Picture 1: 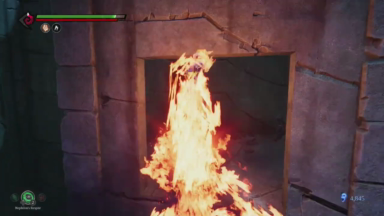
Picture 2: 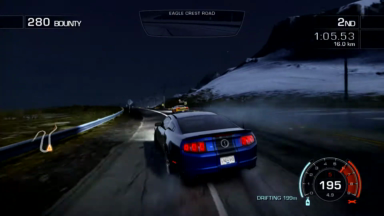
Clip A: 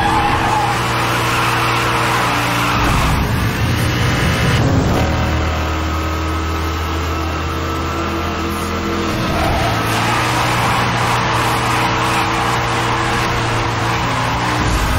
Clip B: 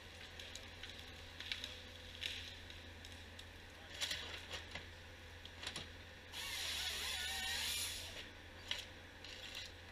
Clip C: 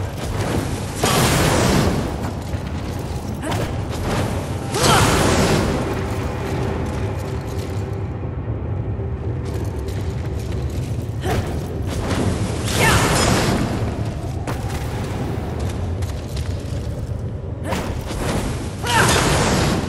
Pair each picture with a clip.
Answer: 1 C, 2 A